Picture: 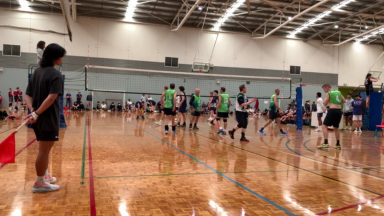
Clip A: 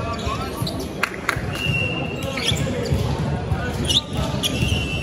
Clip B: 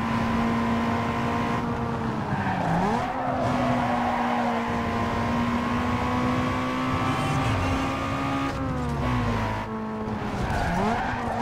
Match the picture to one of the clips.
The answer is A